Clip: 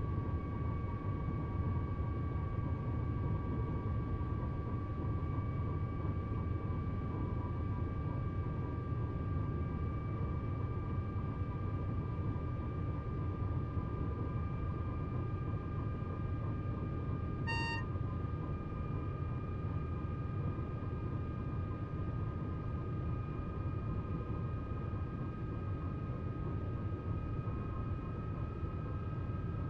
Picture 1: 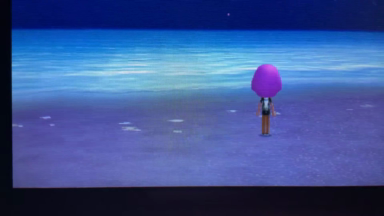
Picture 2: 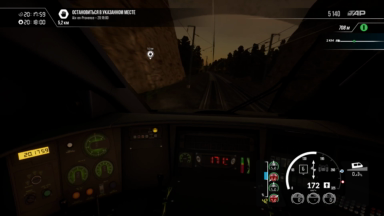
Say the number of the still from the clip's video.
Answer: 2